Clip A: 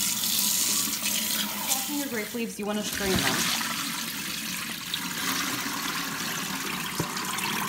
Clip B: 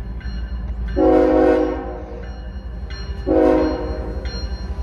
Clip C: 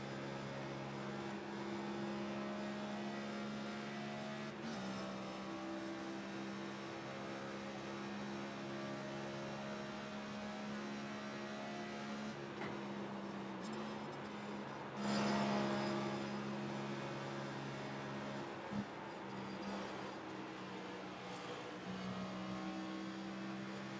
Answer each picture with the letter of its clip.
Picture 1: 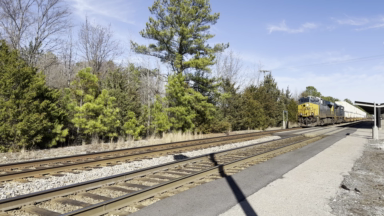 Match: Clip B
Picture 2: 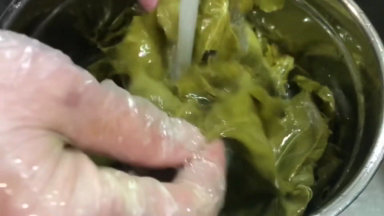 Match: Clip A